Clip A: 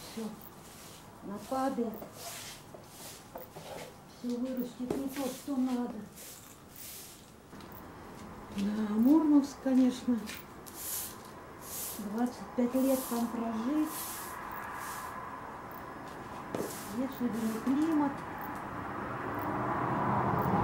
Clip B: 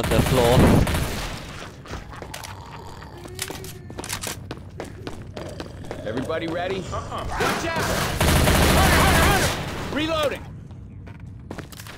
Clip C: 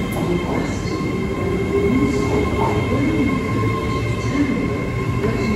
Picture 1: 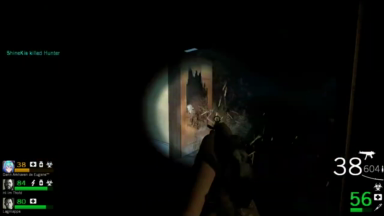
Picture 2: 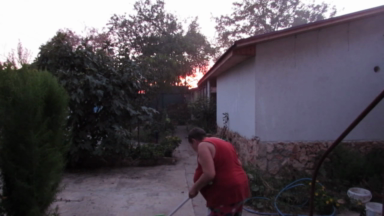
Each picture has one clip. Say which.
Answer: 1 B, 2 A